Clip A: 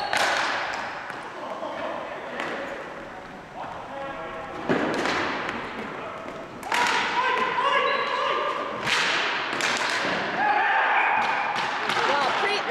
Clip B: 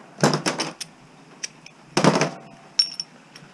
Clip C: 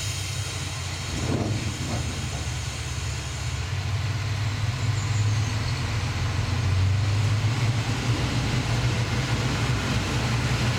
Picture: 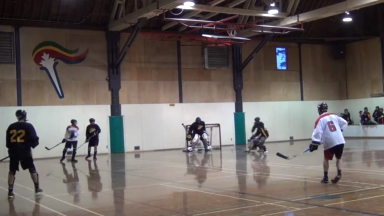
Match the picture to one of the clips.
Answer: A